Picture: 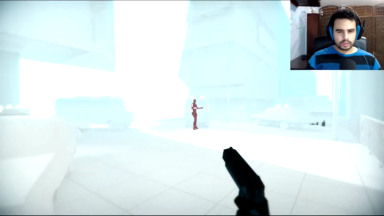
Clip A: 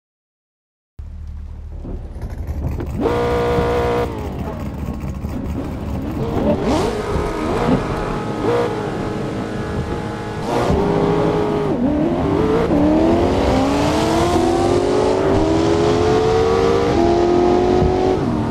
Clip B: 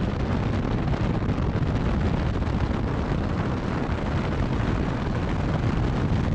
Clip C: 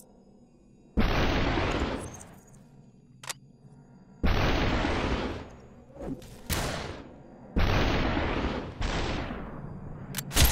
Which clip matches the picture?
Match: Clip C